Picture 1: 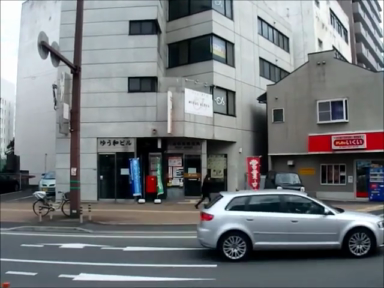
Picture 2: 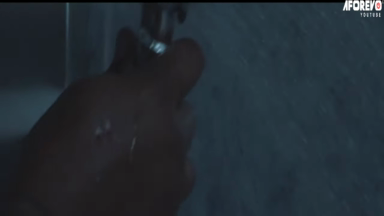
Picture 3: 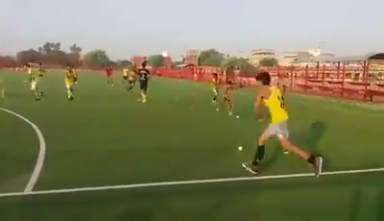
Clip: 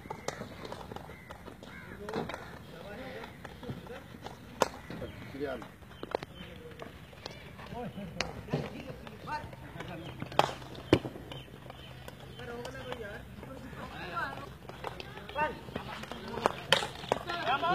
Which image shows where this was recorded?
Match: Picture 3